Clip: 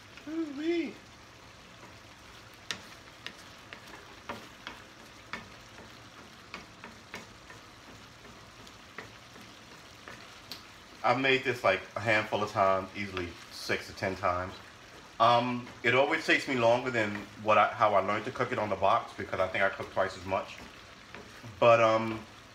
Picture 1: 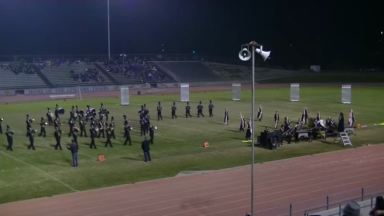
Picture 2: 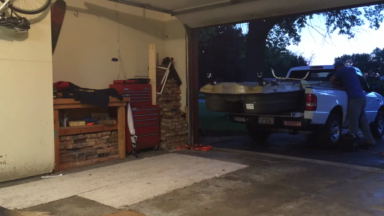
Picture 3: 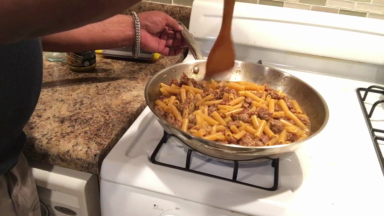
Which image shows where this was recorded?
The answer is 3